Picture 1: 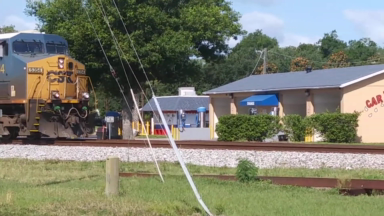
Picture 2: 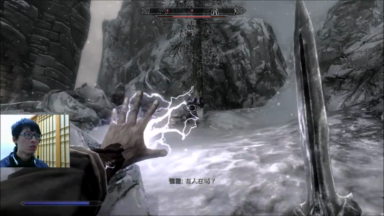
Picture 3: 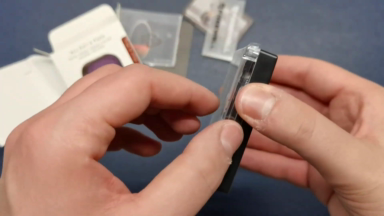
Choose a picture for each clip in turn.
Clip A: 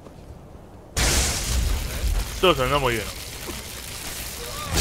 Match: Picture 2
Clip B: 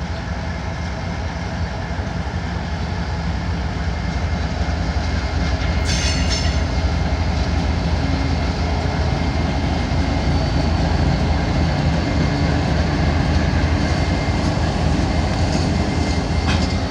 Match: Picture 1